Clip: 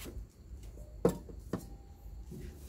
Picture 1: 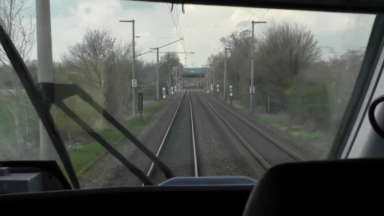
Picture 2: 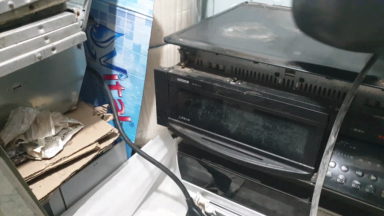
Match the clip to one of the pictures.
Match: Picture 2